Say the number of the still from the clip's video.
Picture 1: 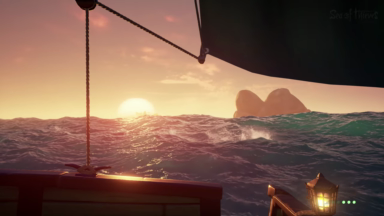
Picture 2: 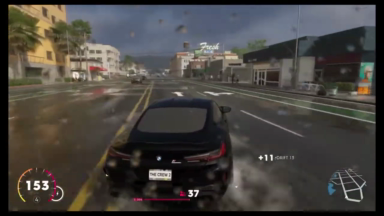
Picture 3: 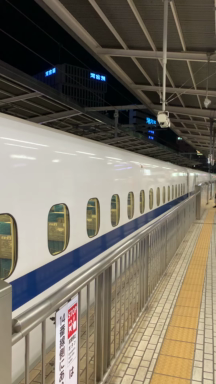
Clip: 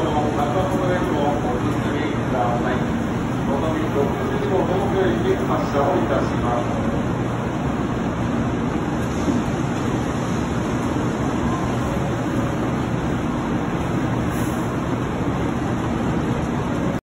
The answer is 3